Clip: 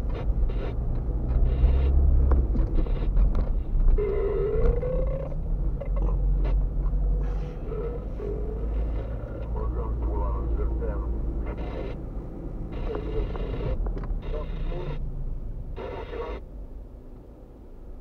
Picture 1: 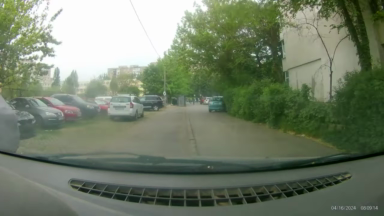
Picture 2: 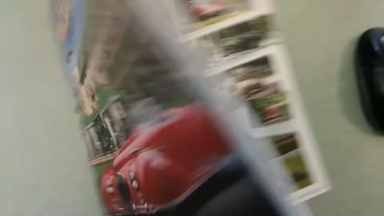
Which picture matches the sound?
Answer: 1